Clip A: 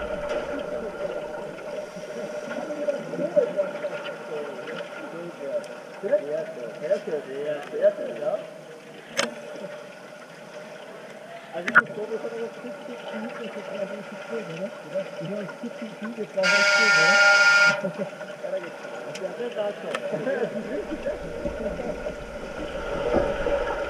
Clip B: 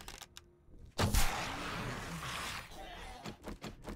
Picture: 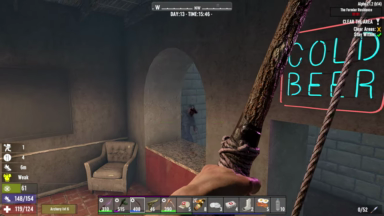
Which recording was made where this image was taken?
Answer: B